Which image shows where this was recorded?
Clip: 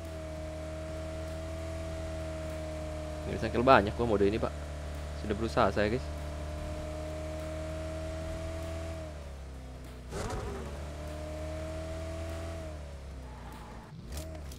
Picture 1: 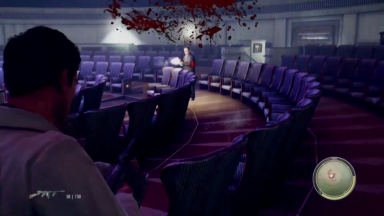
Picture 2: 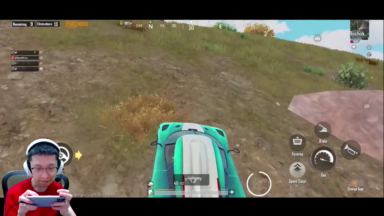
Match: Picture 2